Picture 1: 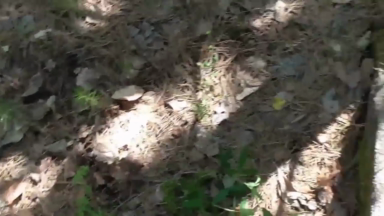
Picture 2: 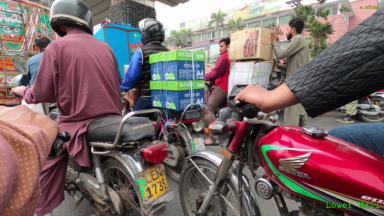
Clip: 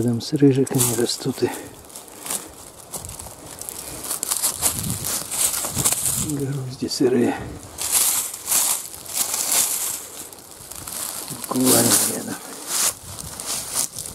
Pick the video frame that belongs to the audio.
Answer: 1